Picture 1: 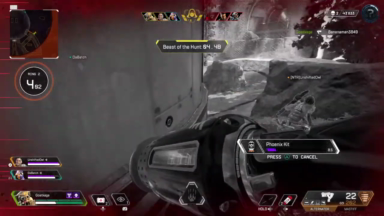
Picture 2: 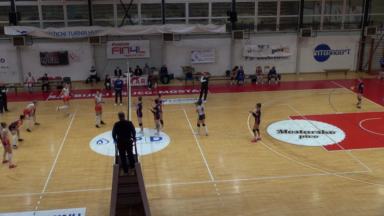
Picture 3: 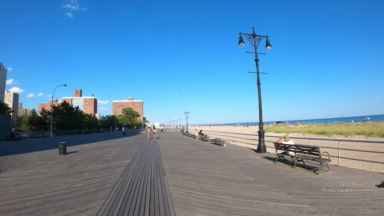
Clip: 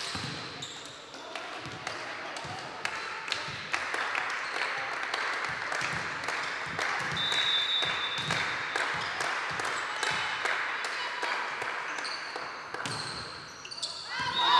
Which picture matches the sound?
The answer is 2